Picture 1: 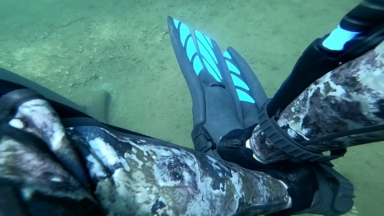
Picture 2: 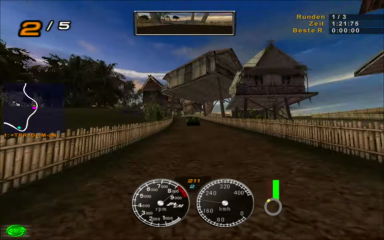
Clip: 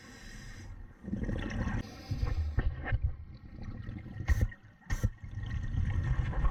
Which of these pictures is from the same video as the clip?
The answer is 1